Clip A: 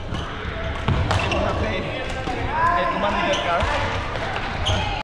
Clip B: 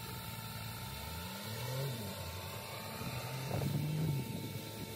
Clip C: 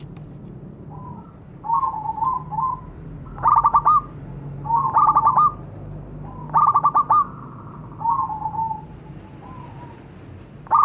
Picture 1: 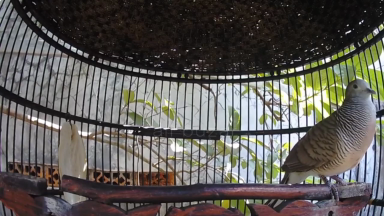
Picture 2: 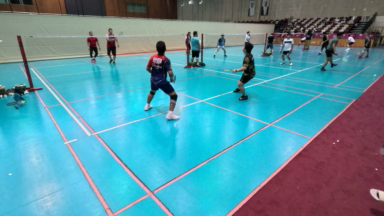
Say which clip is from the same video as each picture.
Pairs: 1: C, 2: A